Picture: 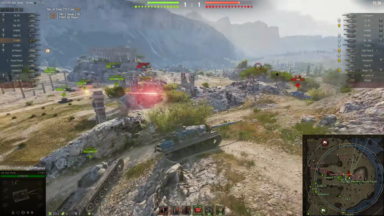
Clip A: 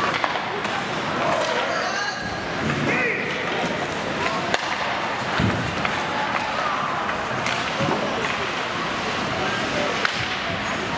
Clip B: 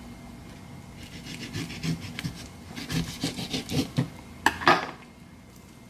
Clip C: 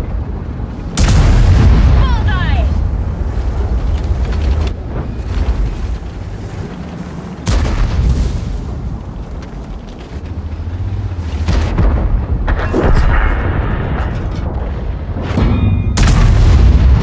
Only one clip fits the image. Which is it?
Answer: C